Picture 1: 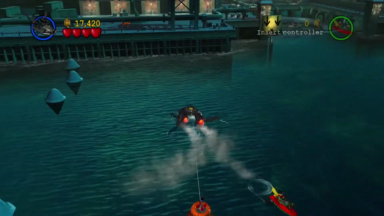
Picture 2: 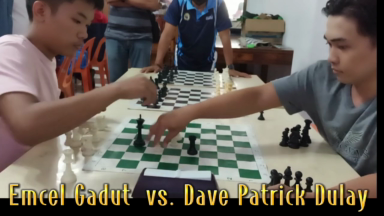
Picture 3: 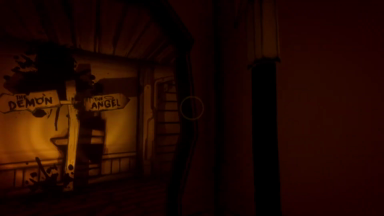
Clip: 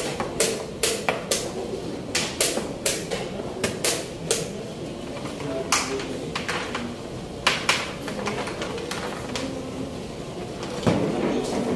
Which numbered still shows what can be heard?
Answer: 2